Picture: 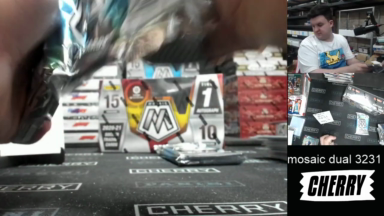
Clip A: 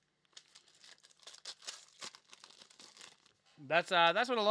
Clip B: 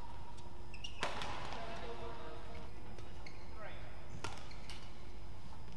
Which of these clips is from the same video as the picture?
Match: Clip A